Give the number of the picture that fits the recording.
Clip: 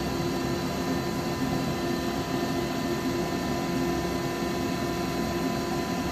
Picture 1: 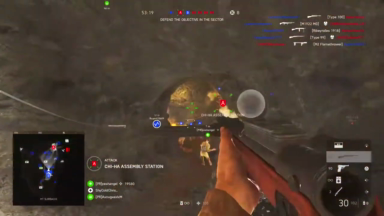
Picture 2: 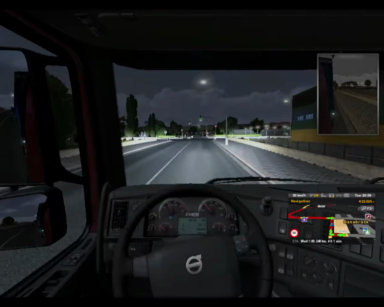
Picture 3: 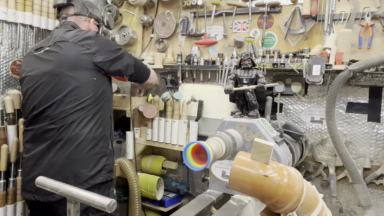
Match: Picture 3